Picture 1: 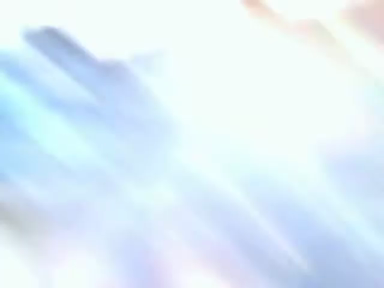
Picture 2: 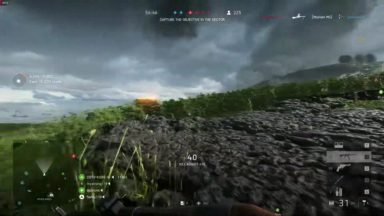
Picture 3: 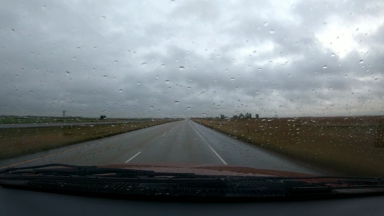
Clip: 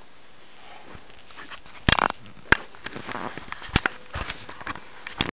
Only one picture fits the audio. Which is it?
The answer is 1